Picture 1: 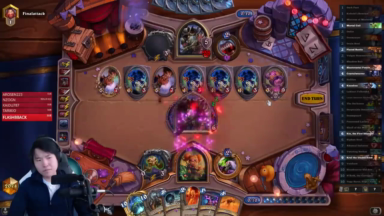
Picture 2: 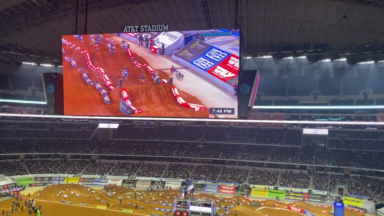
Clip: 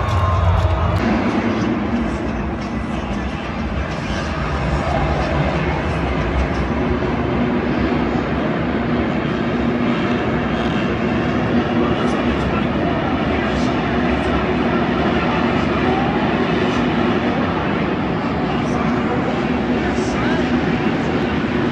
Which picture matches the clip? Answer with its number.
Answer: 2